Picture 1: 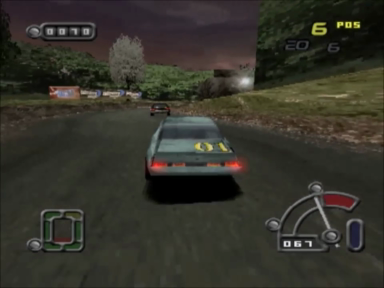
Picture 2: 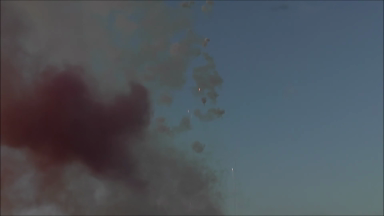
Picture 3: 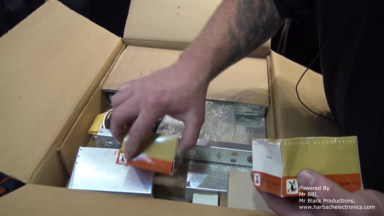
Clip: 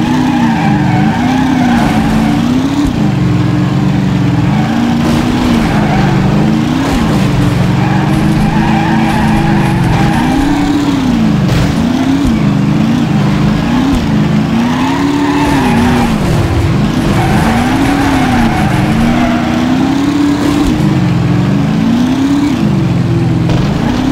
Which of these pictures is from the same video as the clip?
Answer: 1